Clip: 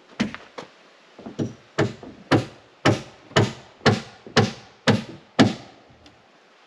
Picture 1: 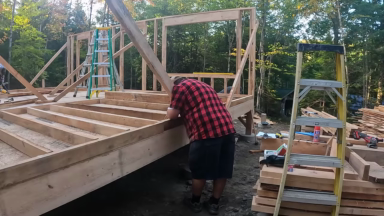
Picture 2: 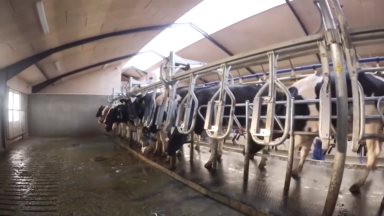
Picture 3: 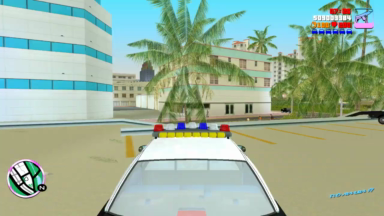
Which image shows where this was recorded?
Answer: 1